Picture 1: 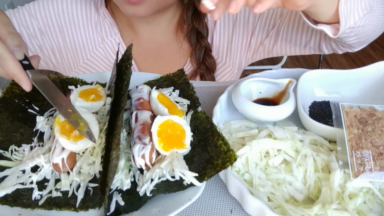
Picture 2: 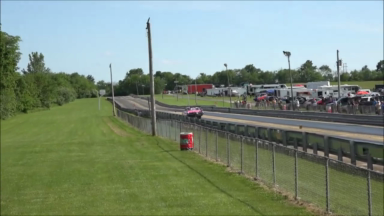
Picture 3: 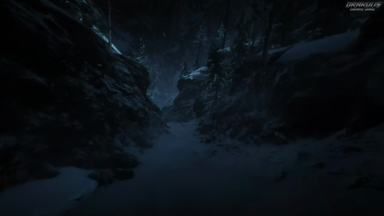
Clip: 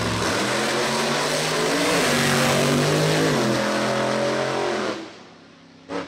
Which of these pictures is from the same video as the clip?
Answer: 2